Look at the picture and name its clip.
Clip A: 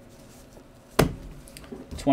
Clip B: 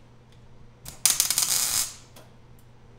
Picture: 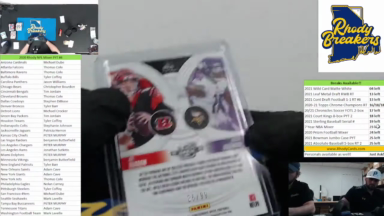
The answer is A